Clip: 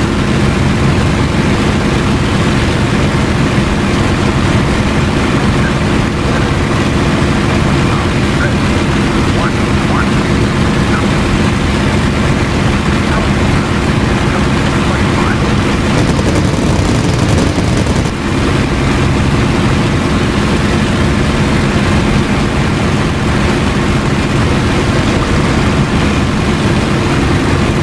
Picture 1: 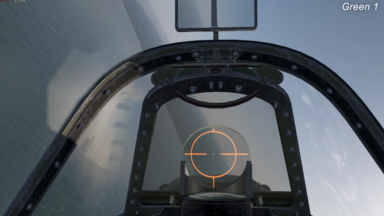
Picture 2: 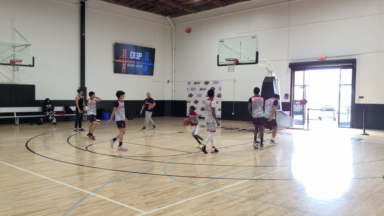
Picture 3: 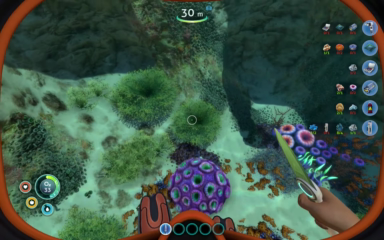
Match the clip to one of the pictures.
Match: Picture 1